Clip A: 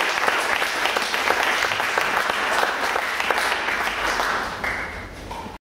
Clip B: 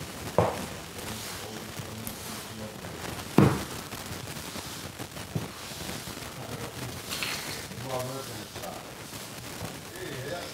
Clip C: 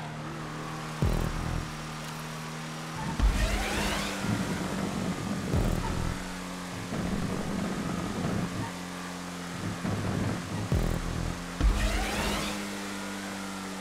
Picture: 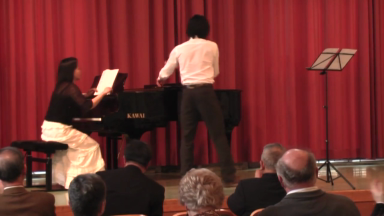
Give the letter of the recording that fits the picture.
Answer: A